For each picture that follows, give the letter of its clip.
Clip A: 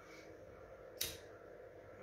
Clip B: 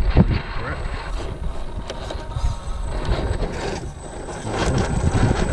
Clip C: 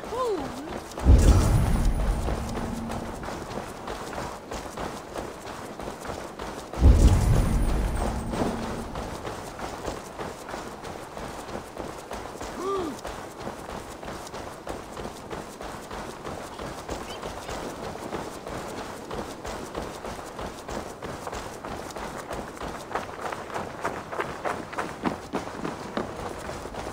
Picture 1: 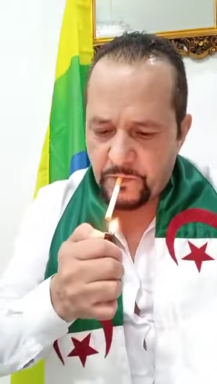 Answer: A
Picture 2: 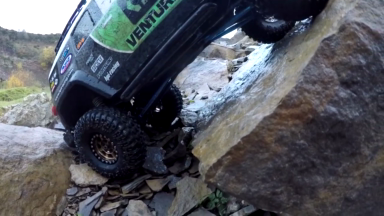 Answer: B